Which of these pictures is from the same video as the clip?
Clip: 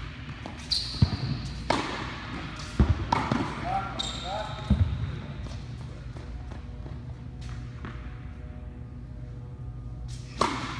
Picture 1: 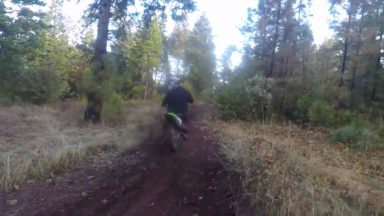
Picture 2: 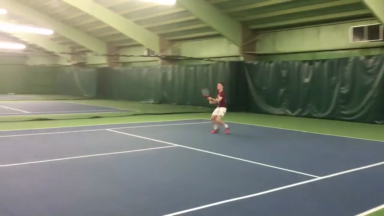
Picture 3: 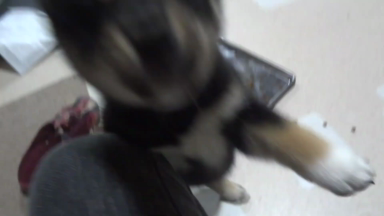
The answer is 2